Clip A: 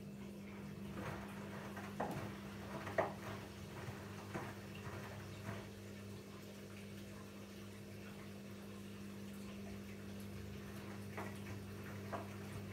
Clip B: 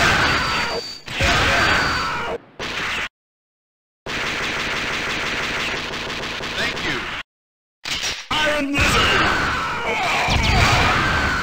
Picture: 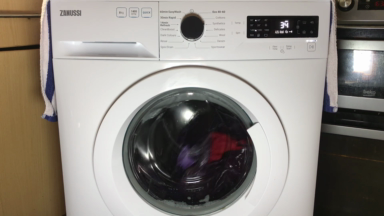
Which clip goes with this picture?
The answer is A